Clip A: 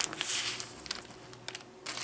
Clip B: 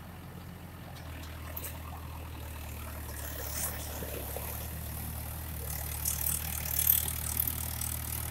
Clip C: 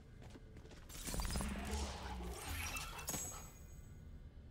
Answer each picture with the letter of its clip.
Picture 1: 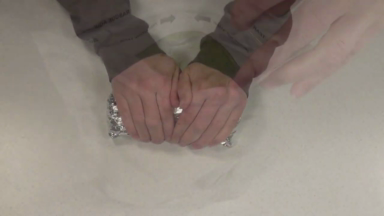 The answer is A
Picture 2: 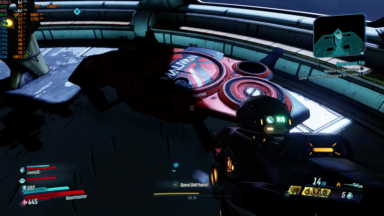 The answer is C